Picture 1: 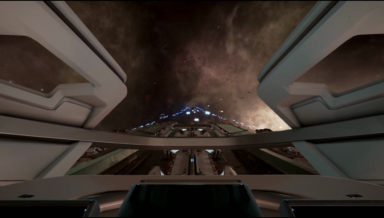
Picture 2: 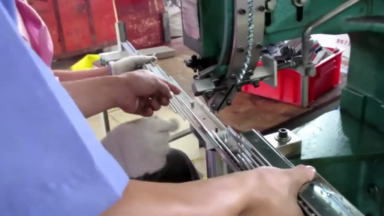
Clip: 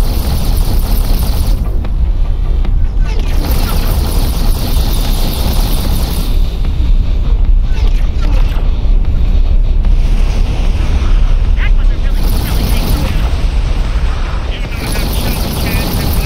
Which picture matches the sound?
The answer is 1